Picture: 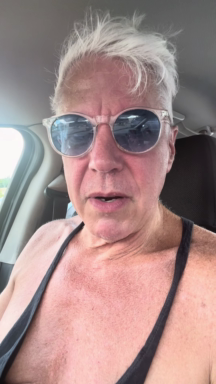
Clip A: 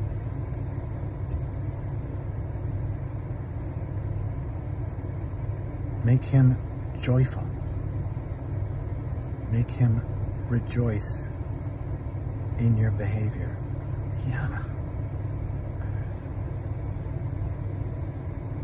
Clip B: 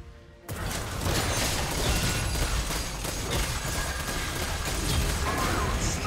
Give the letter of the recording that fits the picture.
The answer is A